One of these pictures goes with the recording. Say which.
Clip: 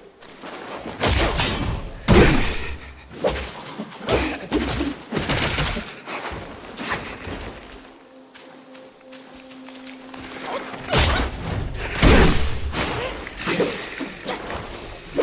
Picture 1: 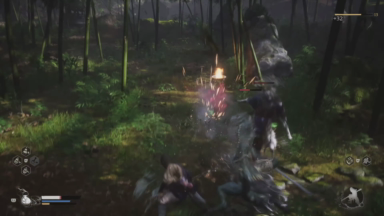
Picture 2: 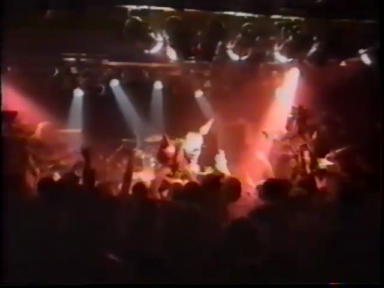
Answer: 1